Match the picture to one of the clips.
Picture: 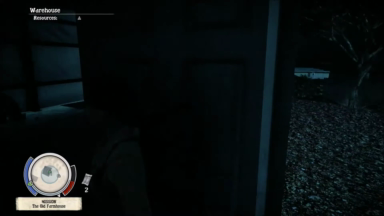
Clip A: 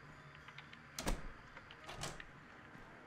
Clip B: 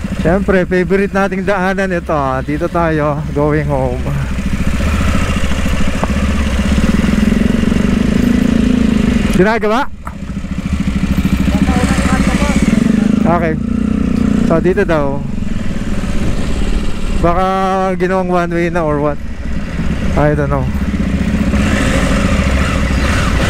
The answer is A